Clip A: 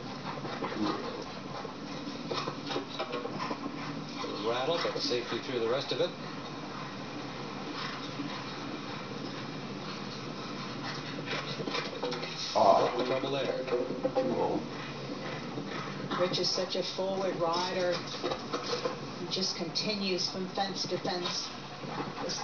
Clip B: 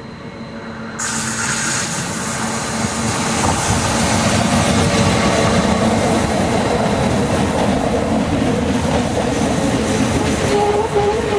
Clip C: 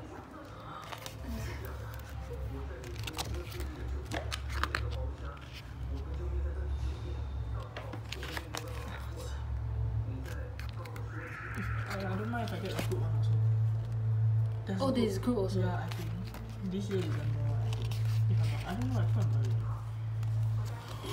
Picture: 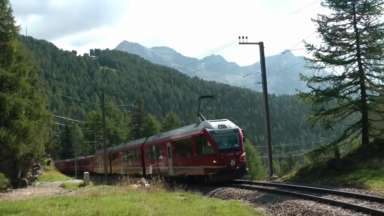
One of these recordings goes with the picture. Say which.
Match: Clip B